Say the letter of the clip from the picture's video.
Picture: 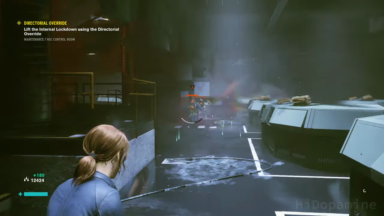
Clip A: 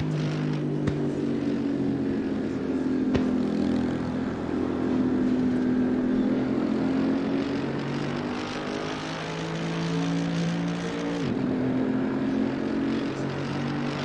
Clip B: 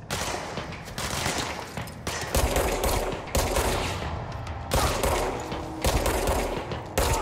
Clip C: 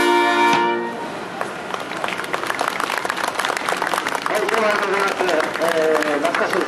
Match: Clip B